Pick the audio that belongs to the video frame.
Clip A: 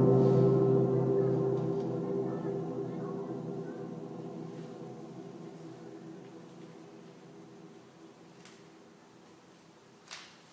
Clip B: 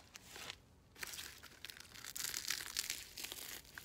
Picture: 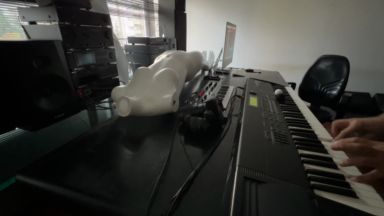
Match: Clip A